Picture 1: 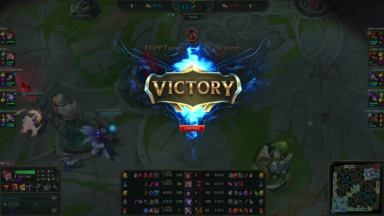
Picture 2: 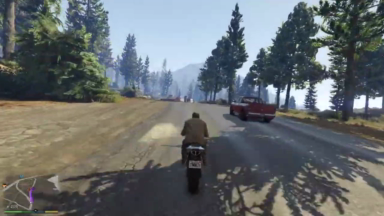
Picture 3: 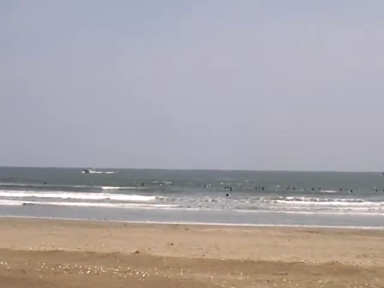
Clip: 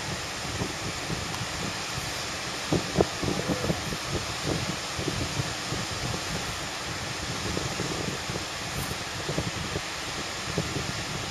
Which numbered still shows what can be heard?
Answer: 3